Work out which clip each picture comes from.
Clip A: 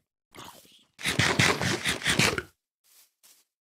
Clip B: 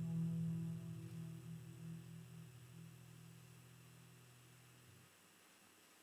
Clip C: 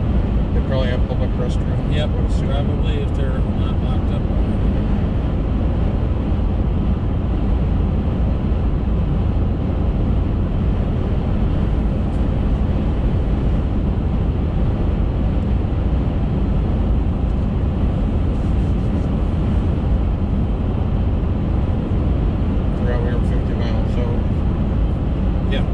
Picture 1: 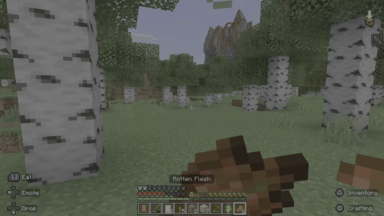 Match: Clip A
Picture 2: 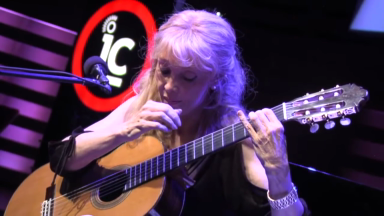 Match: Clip B